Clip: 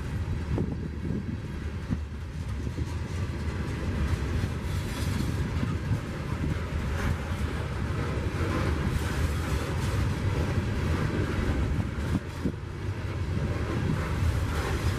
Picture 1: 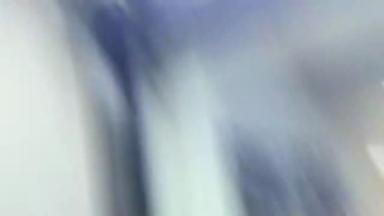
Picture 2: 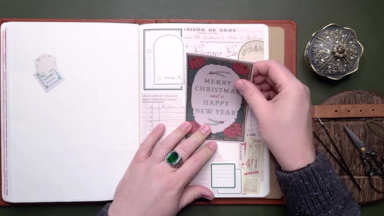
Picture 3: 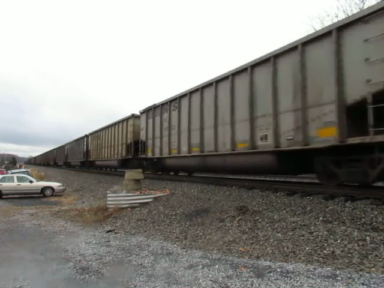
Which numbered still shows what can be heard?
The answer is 3